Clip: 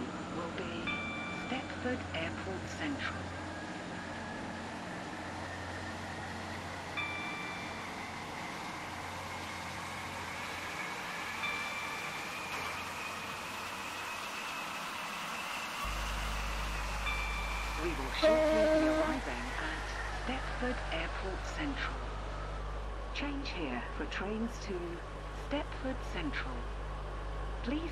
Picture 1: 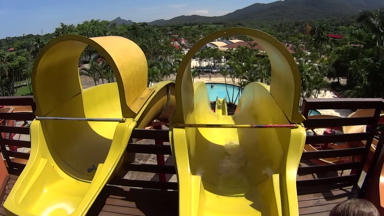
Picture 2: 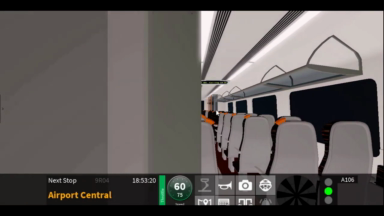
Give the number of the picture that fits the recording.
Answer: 2